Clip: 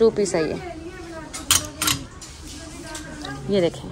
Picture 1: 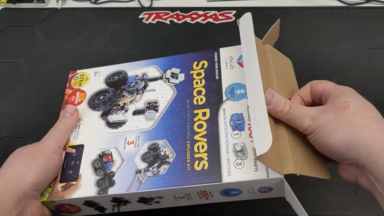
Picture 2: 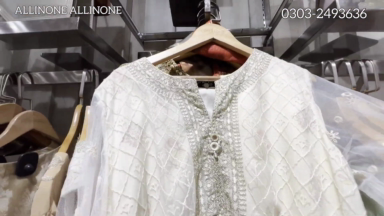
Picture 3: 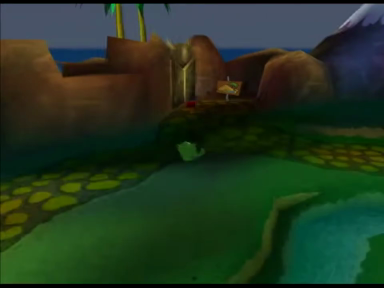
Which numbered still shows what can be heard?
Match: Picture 2